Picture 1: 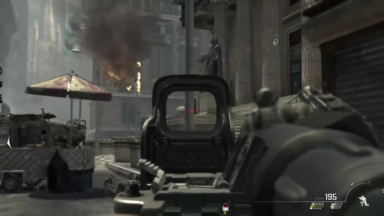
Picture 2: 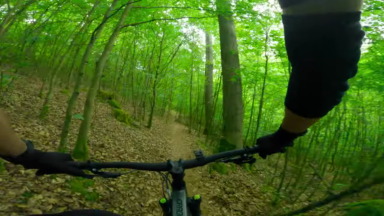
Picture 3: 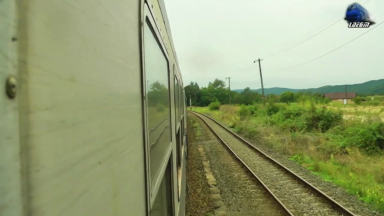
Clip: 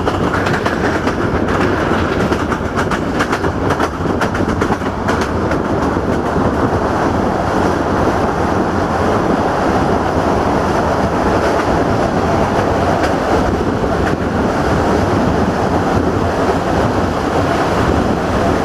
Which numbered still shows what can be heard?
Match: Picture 3